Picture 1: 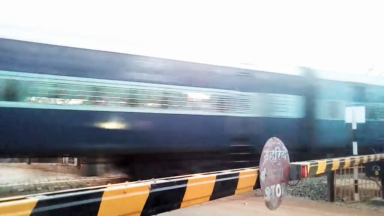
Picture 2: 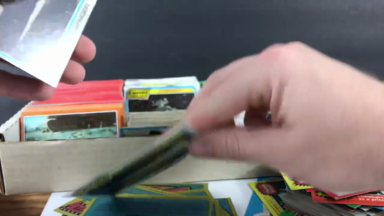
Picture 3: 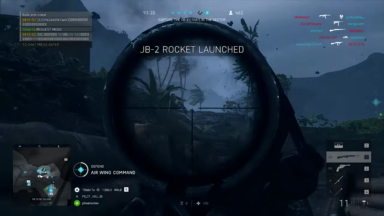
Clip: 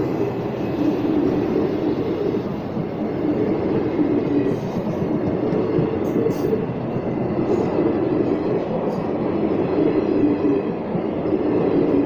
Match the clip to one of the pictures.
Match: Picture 1